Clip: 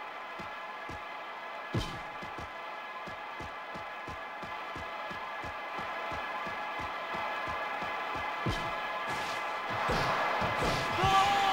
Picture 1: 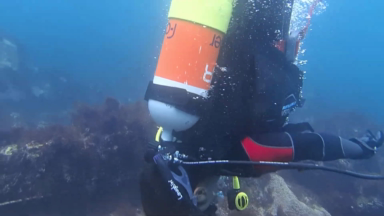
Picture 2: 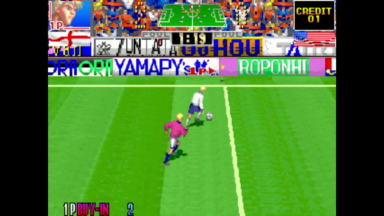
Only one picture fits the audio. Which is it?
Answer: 2